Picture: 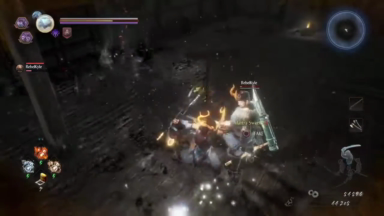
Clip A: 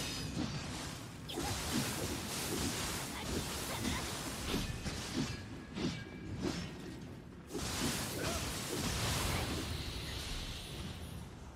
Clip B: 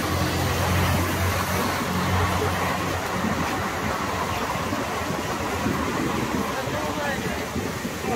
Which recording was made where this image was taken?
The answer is A